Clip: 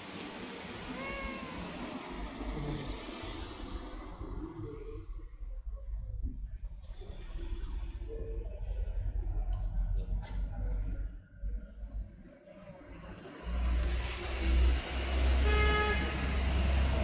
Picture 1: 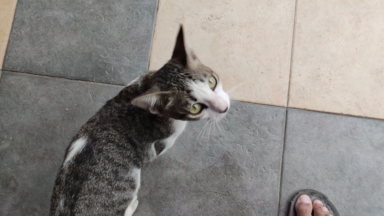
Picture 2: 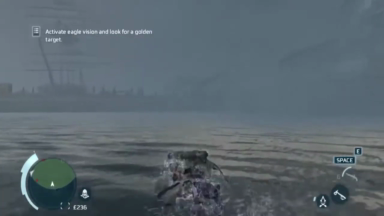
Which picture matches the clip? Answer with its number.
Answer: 1